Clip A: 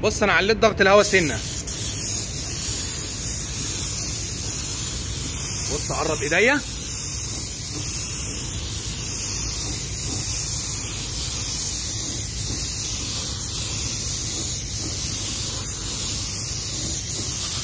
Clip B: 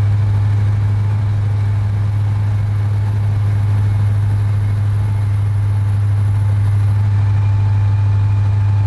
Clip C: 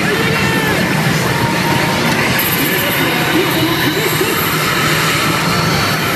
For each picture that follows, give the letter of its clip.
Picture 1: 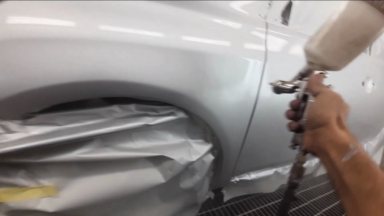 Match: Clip A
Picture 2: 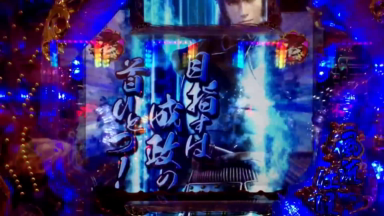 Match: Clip C